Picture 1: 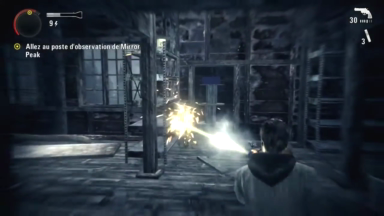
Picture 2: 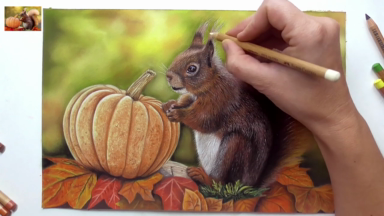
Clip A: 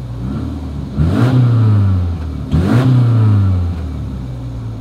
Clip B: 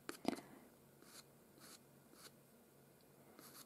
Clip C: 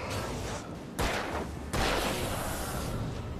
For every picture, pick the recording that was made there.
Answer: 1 C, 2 B